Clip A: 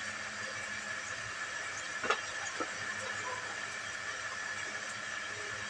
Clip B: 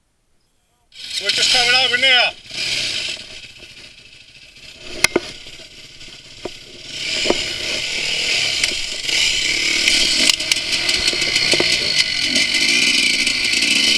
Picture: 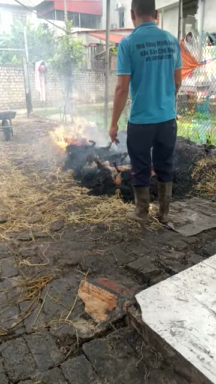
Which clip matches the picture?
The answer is A